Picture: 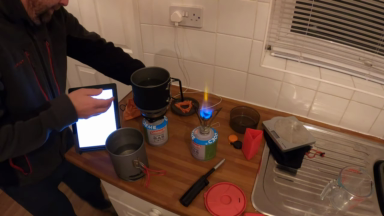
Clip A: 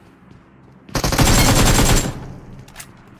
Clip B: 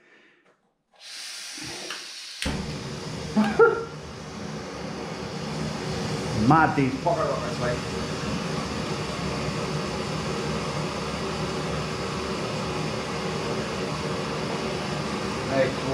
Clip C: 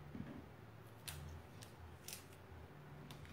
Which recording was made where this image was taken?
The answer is B